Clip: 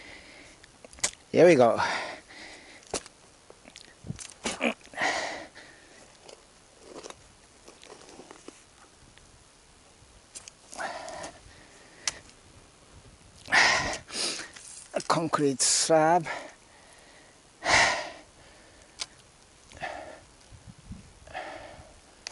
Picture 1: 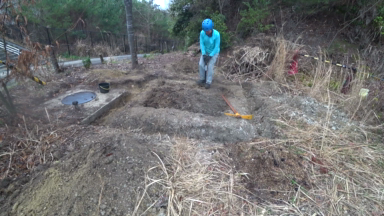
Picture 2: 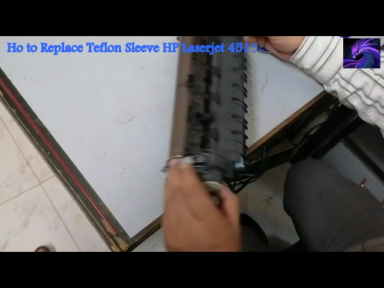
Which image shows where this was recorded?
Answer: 1